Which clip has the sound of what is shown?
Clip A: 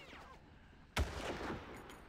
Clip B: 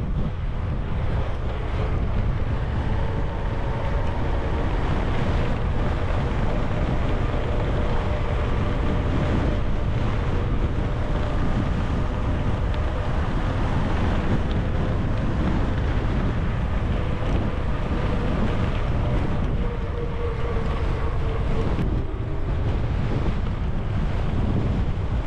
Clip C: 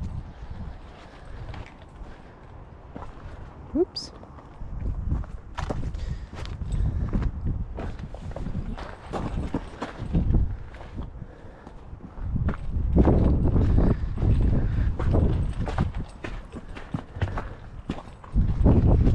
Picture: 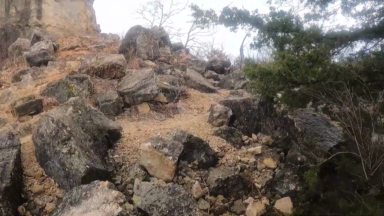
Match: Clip C